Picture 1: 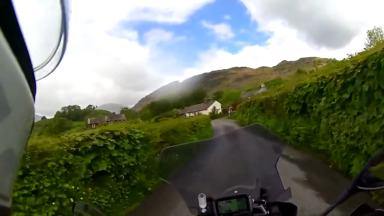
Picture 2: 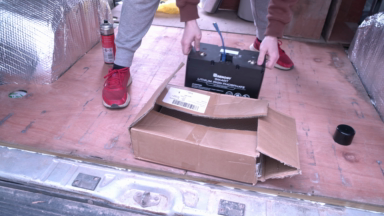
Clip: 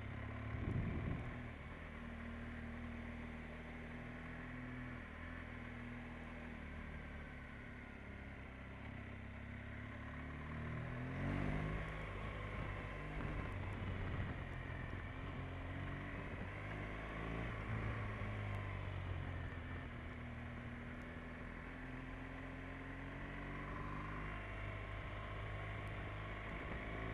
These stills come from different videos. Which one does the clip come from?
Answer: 1